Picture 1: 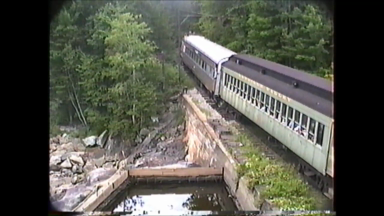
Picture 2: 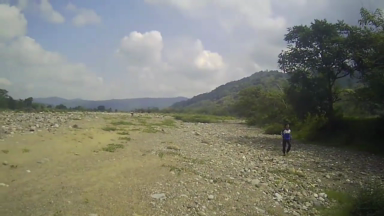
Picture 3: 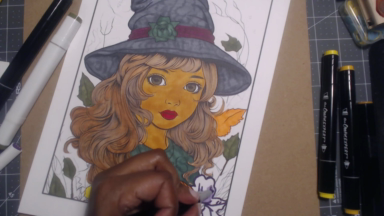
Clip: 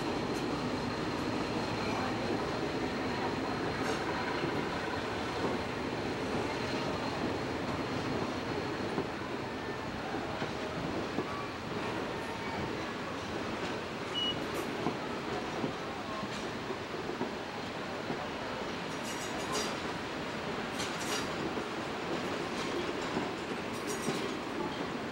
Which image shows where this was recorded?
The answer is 1